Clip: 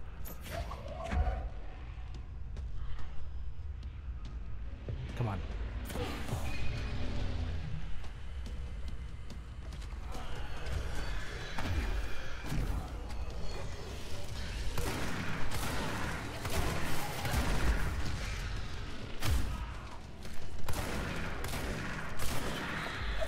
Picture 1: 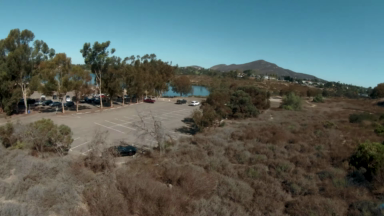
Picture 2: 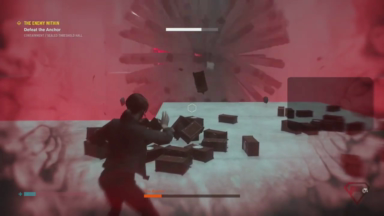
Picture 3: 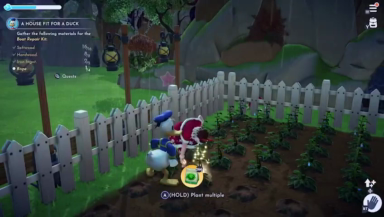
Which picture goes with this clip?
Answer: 2